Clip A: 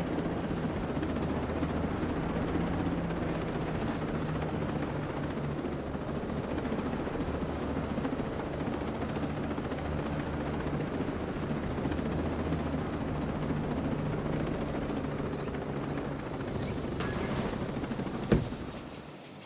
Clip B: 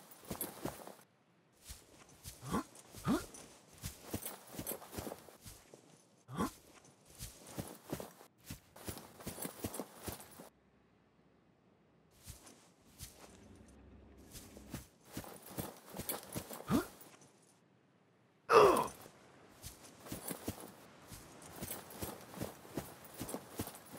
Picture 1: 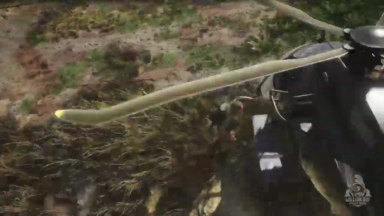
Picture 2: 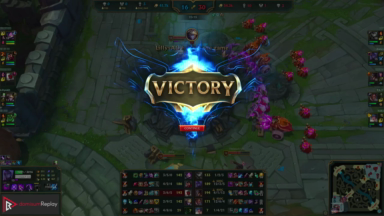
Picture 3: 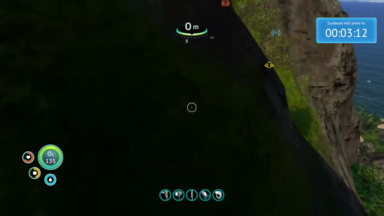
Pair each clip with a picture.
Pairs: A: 1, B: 3